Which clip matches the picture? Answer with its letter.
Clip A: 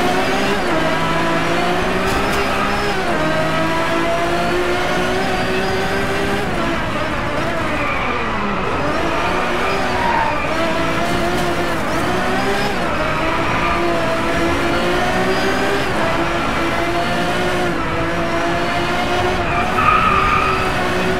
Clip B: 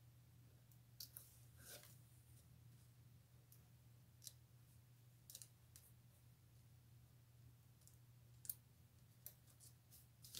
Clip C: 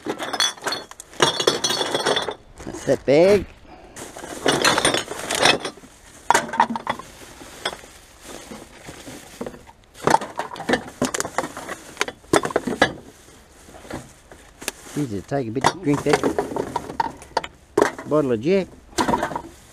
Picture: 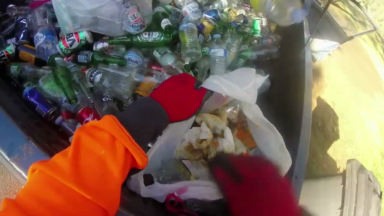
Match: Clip C